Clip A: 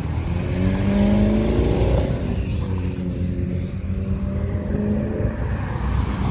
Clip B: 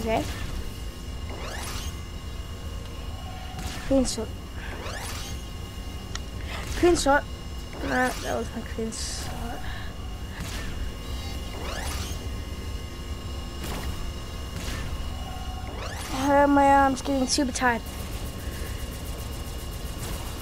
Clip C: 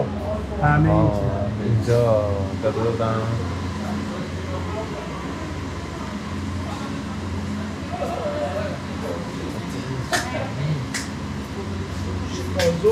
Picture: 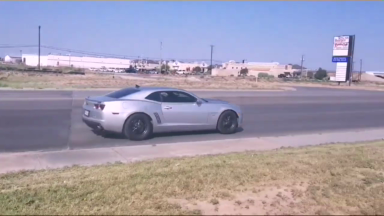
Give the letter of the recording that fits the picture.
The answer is A